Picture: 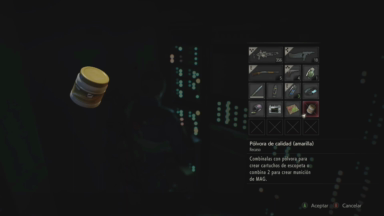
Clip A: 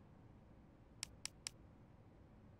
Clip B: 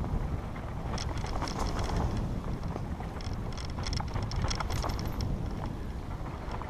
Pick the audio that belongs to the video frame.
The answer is A